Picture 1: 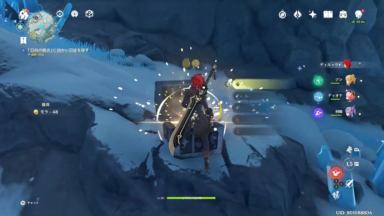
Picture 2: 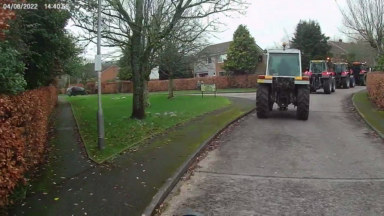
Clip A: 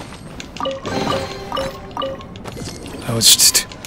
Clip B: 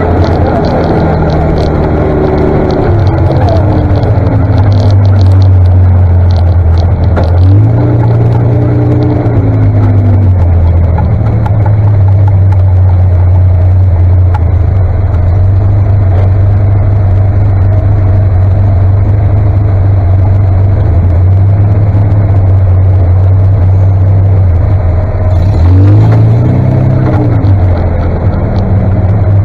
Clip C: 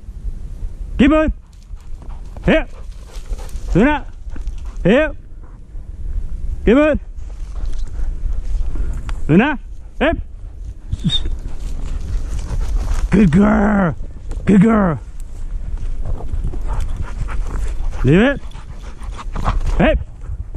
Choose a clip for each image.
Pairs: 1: A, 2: B